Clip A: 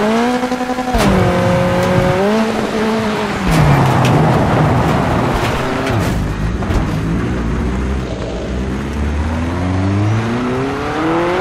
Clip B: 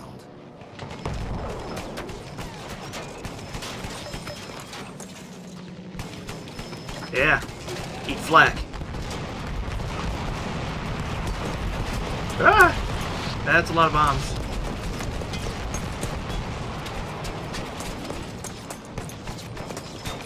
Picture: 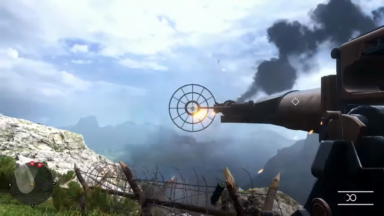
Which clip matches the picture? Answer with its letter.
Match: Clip B